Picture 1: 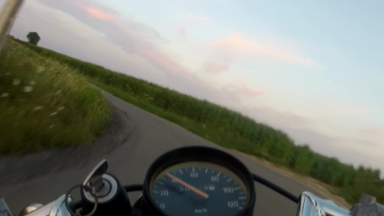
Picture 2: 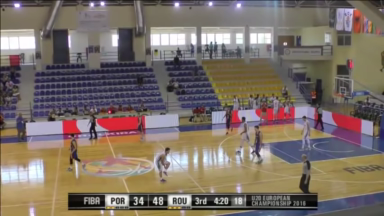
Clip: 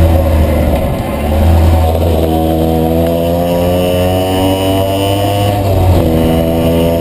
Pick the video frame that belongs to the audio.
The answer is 1